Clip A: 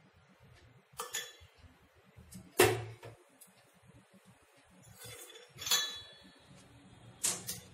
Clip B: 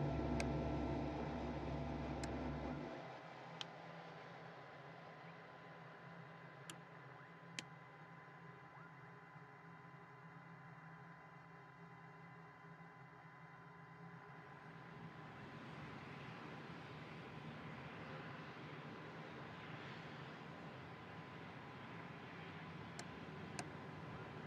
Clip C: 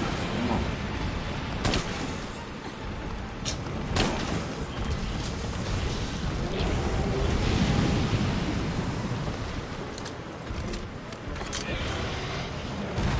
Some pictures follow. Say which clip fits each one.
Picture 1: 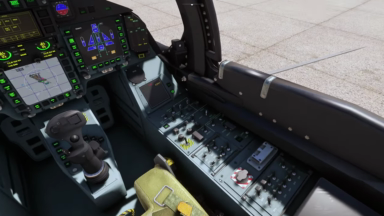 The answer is B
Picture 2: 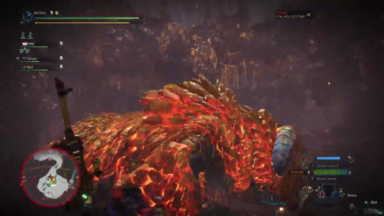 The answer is C